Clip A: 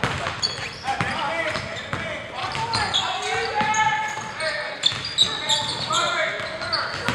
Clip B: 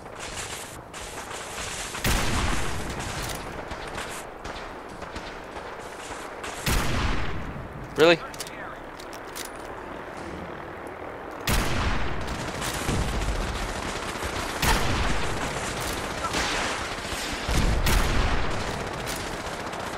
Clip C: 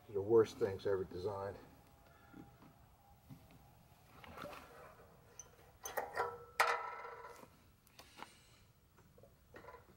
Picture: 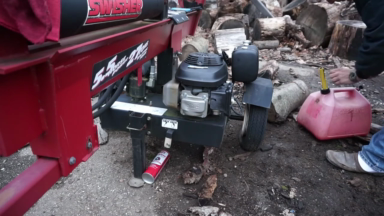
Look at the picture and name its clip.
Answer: C